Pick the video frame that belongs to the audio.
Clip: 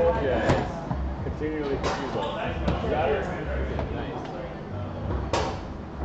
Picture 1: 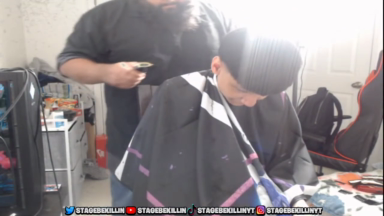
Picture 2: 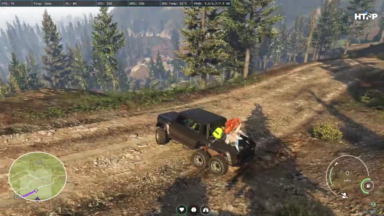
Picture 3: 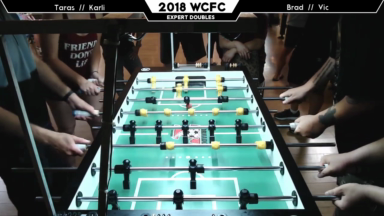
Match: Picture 3